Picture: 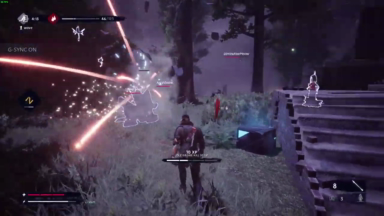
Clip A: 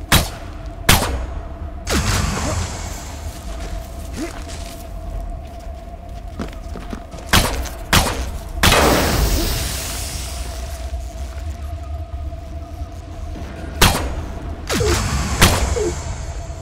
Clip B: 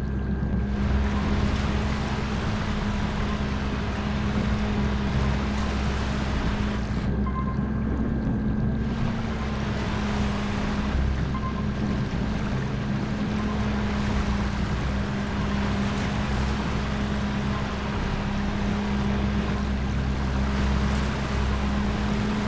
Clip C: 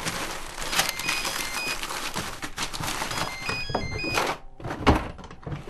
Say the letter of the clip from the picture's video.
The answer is A